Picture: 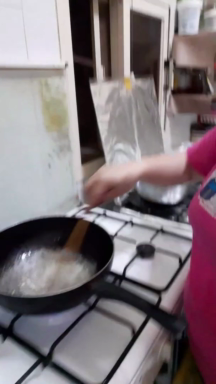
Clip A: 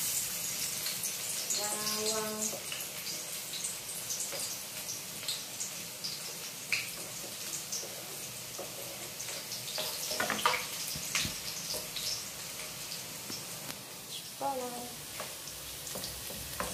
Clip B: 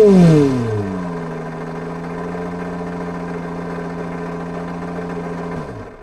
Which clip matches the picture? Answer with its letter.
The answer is A